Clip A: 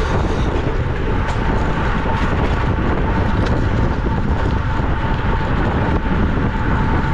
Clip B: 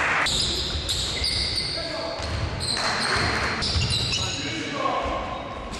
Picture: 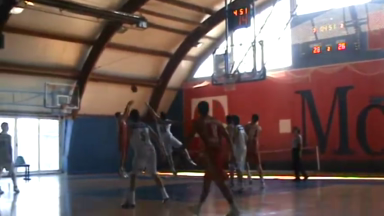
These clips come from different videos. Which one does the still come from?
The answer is B